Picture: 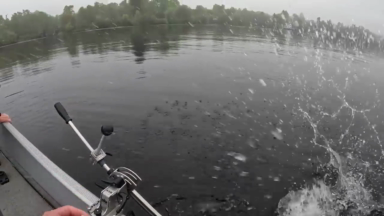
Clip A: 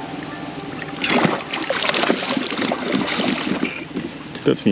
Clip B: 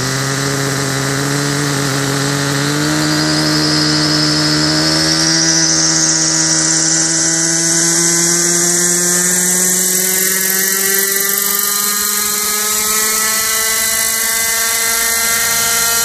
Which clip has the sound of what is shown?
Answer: A